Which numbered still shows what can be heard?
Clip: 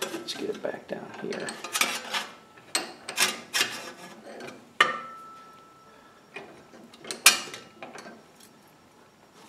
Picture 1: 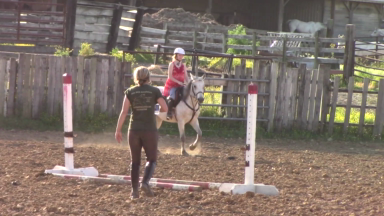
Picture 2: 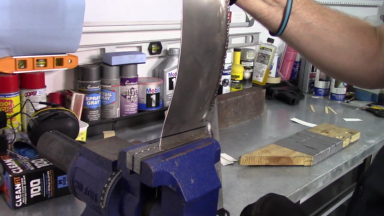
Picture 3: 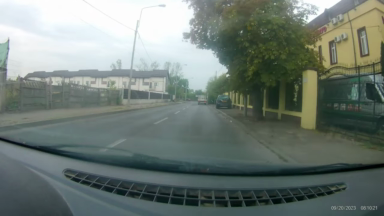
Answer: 2